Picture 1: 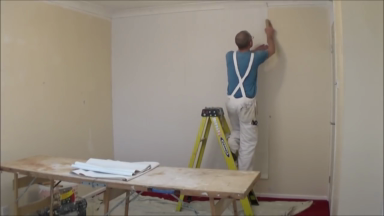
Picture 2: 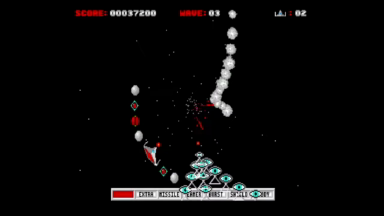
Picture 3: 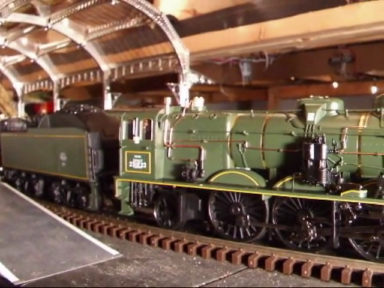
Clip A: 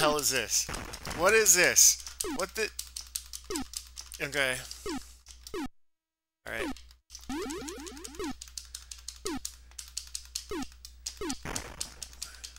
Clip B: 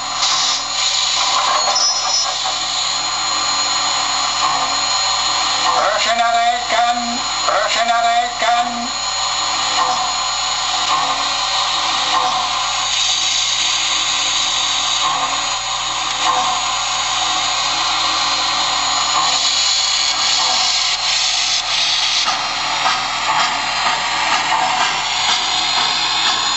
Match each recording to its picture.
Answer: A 2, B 3